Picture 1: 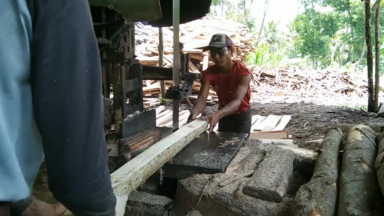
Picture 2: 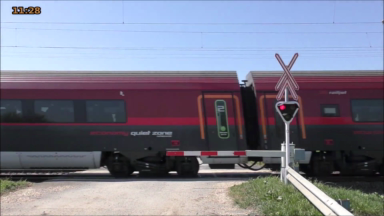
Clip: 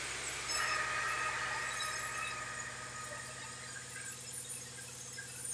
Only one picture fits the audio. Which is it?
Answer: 1